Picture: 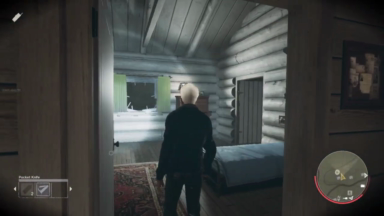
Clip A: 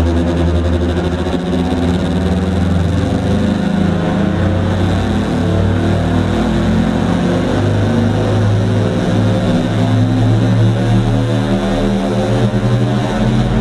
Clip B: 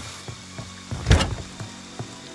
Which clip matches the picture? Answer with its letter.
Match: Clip B